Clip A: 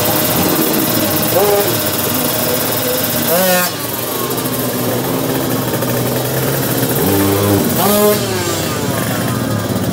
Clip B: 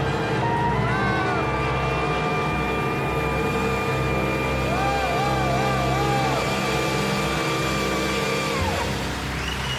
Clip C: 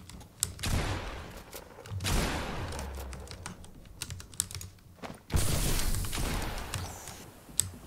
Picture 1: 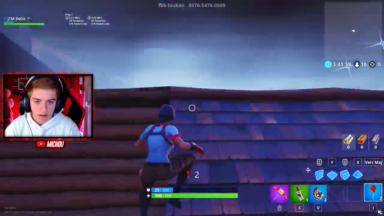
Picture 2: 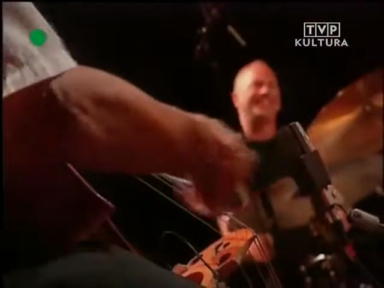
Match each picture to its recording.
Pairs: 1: C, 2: B